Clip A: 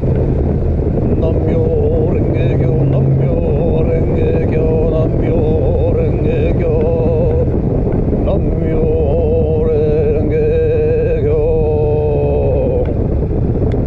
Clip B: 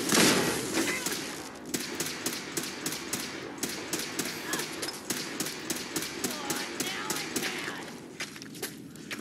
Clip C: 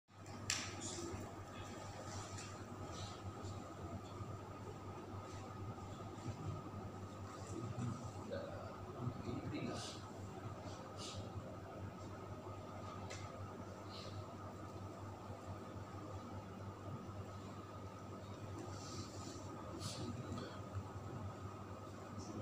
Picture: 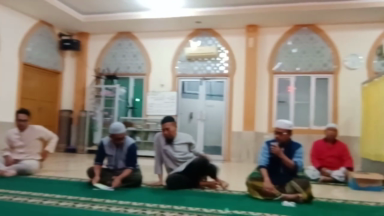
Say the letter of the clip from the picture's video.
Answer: C